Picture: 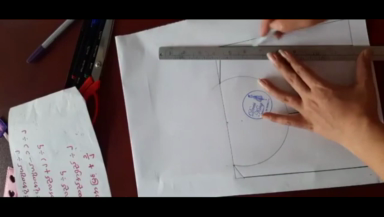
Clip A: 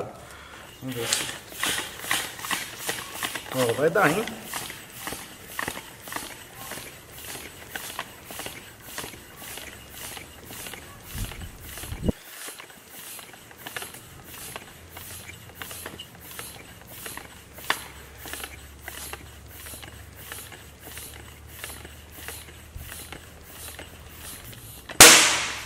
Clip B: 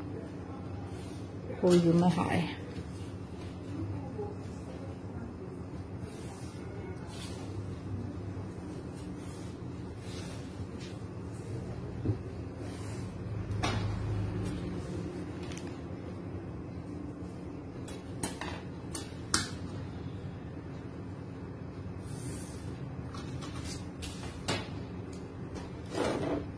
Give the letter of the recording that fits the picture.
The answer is B